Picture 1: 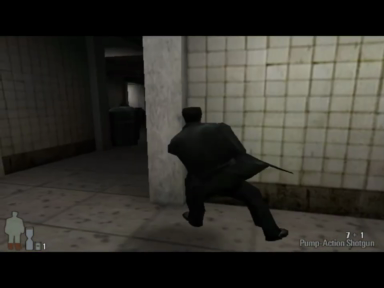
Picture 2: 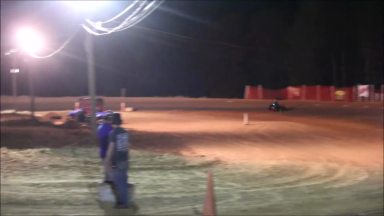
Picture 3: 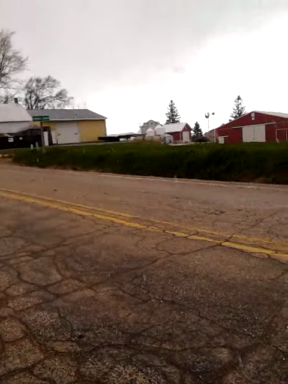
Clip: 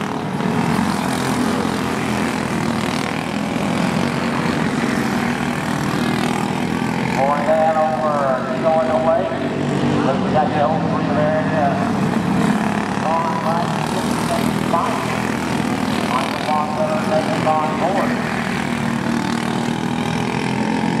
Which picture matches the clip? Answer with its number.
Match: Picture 2